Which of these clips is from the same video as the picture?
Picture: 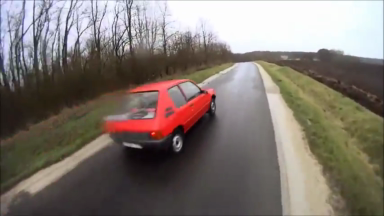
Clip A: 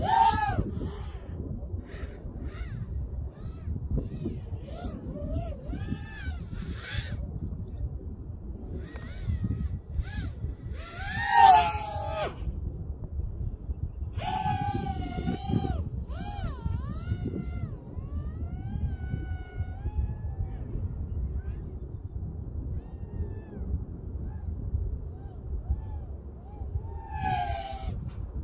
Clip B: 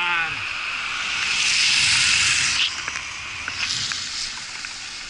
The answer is B